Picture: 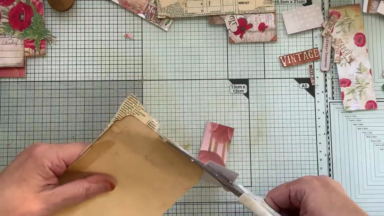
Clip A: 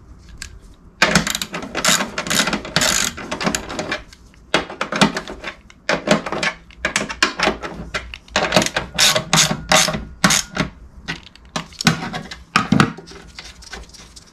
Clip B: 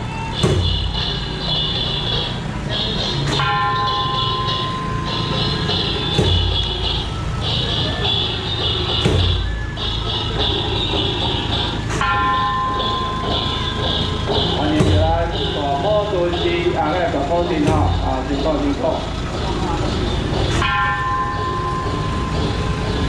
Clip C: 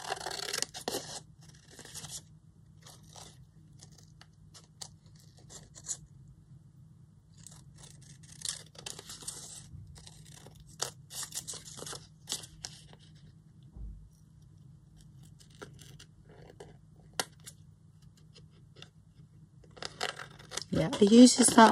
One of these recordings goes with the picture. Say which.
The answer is C